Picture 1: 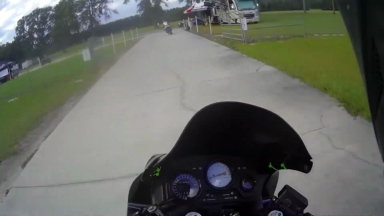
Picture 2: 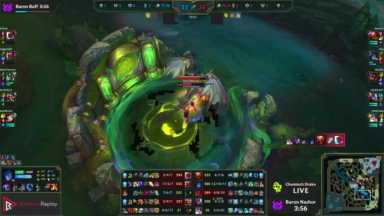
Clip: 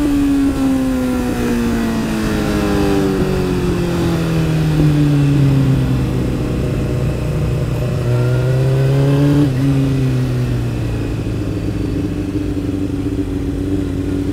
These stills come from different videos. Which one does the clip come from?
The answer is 1